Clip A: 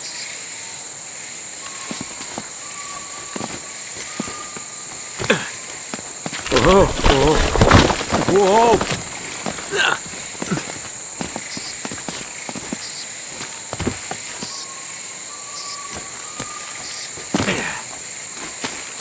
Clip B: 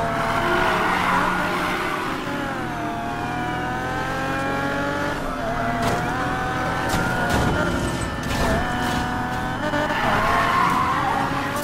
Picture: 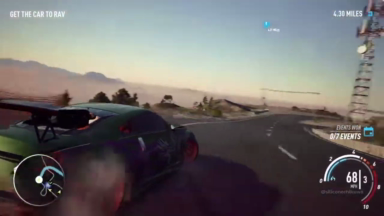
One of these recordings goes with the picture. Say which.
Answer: B